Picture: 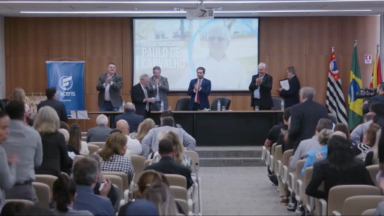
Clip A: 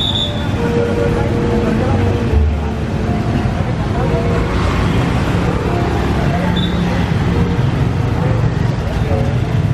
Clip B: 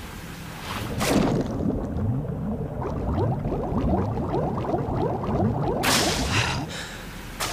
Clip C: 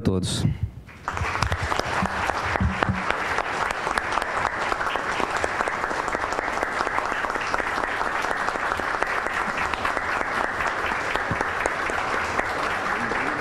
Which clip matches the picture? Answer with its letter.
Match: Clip C